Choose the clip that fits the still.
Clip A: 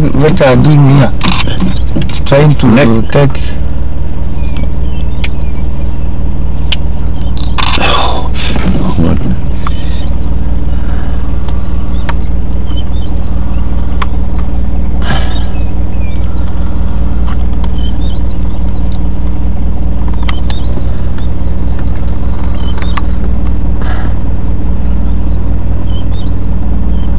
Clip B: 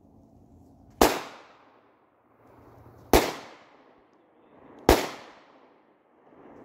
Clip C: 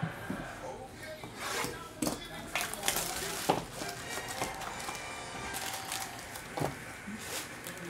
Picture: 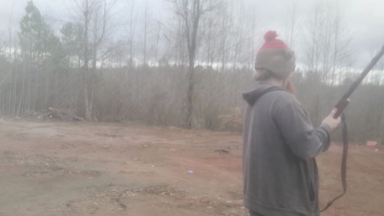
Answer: B